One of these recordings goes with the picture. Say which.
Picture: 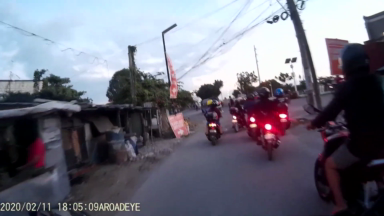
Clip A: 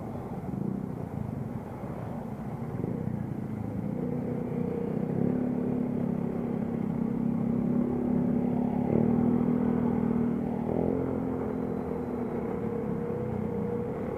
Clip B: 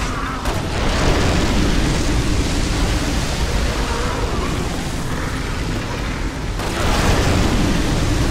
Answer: A